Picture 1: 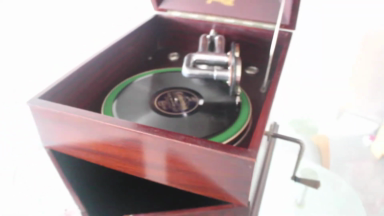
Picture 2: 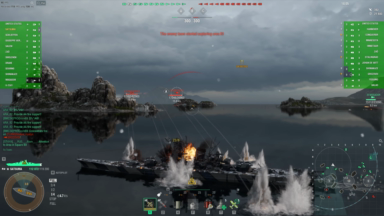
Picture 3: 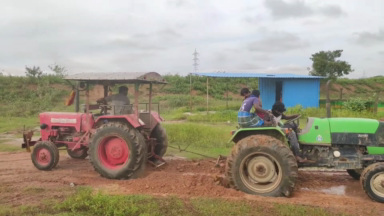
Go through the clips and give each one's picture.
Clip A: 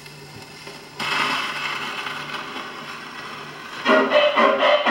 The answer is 1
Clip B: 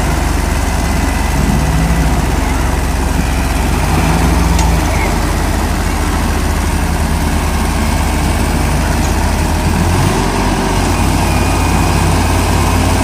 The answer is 3